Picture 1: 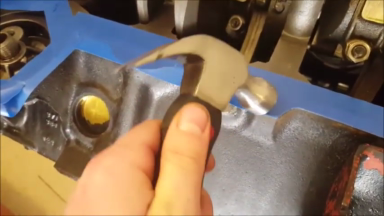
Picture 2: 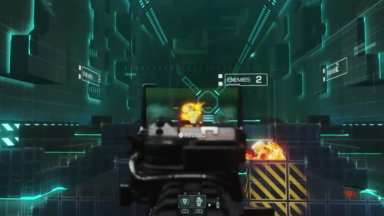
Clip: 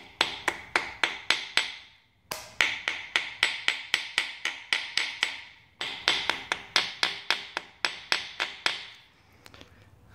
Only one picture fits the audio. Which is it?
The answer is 1